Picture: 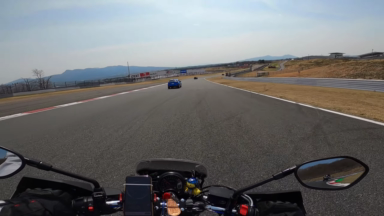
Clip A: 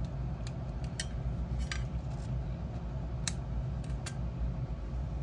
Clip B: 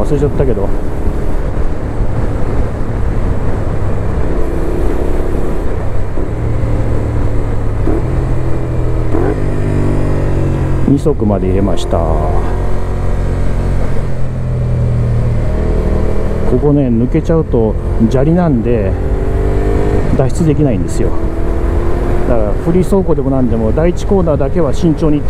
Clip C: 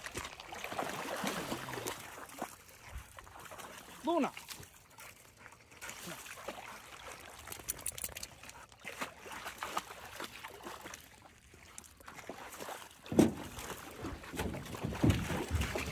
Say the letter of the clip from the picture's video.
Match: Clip B